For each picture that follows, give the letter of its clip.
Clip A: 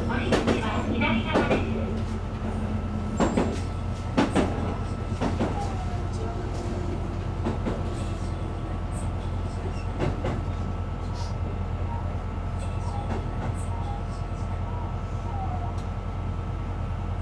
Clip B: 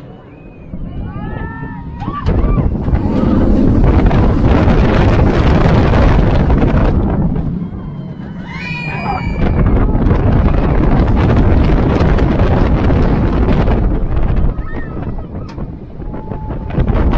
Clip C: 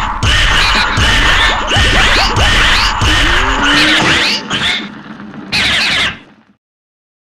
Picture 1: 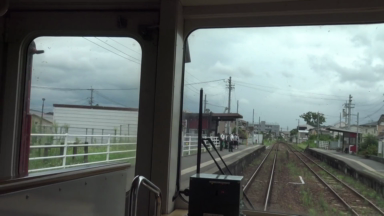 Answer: A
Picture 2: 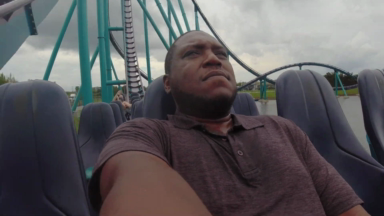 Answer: B